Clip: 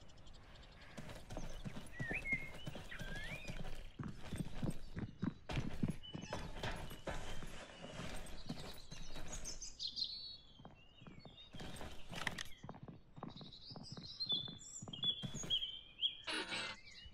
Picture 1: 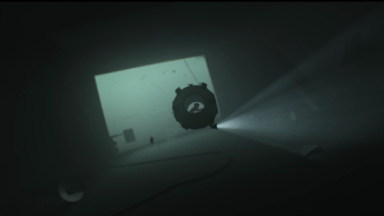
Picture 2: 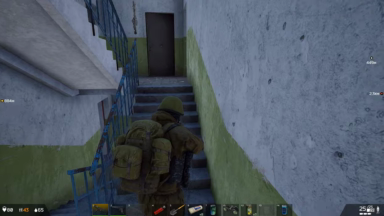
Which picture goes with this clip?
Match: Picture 2